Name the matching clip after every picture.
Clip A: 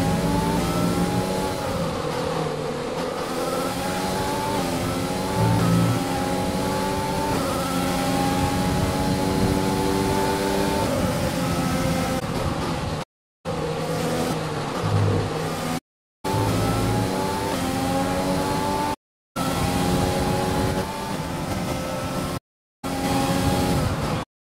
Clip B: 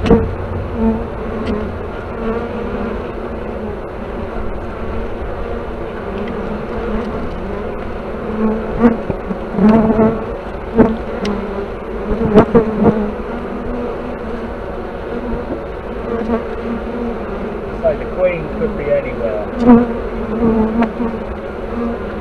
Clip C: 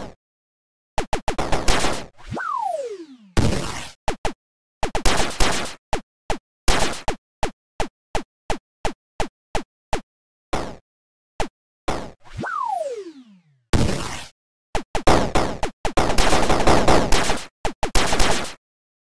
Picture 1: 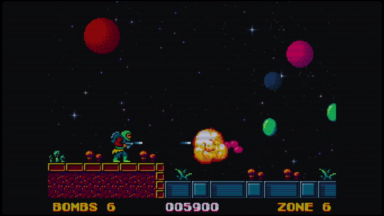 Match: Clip C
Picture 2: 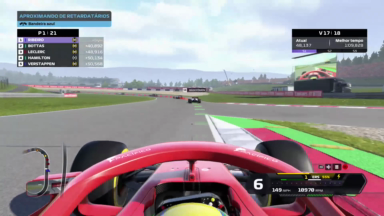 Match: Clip A